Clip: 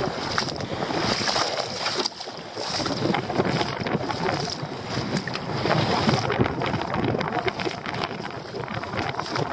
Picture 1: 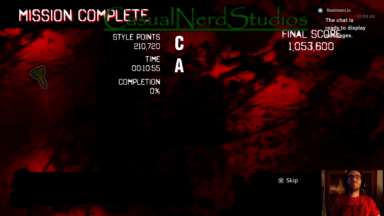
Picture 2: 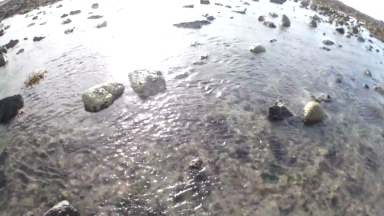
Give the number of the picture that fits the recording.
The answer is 2